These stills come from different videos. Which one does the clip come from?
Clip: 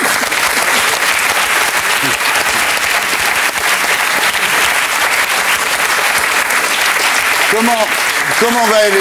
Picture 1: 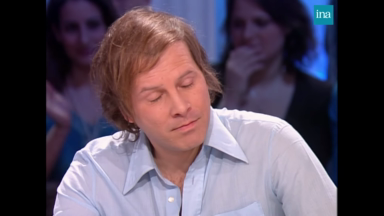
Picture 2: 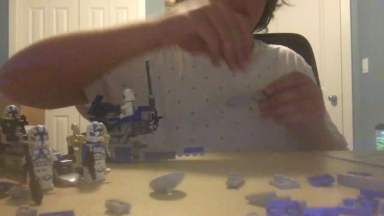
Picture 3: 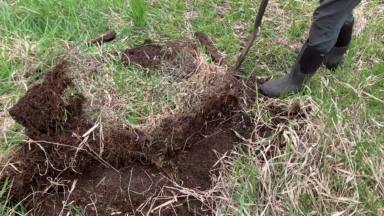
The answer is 1